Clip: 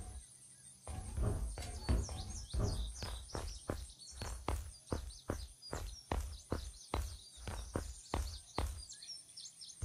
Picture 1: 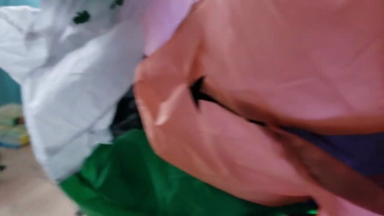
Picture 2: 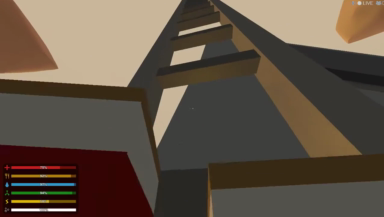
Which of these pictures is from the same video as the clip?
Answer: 2